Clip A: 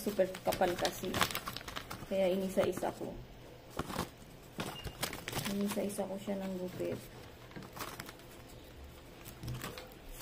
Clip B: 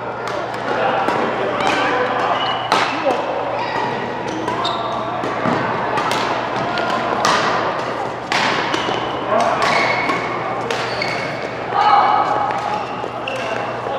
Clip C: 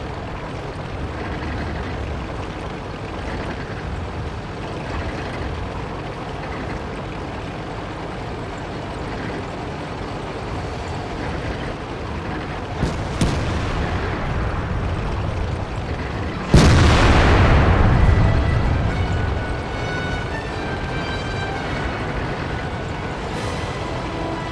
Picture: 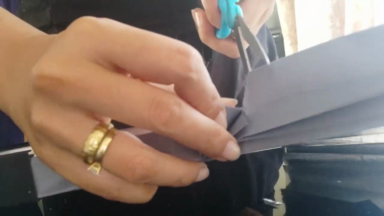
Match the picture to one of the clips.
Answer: A